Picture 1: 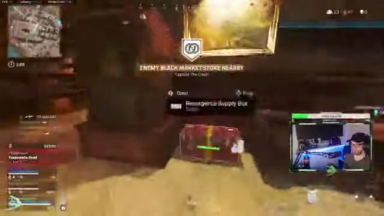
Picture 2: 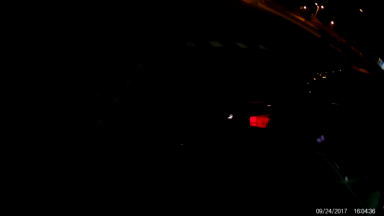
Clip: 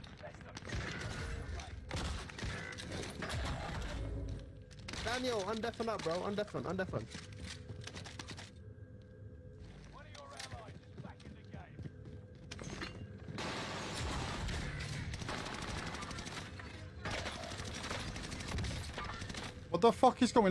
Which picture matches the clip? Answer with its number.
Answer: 1